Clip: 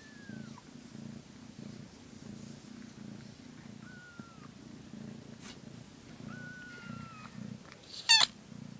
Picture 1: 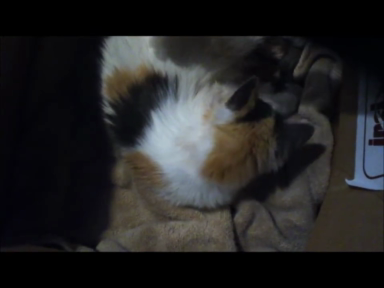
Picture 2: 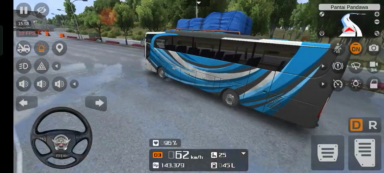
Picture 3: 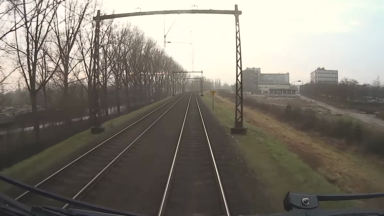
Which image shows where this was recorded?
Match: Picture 1